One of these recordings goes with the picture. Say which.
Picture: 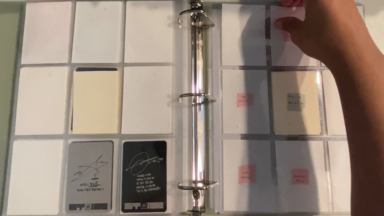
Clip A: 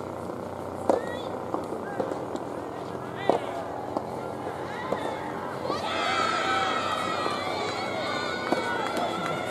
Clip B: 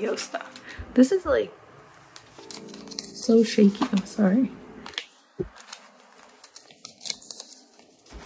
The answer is B